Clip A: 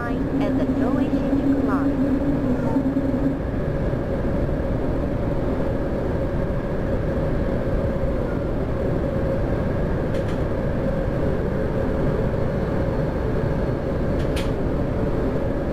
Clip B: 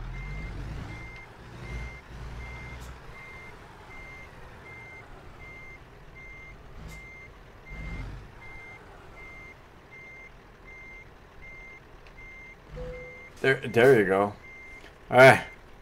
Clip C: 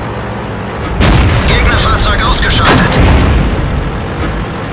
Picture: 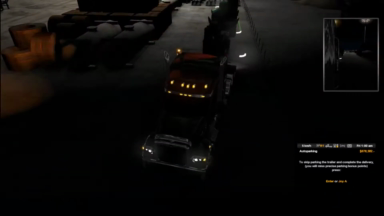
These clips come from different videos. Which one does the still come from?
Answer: B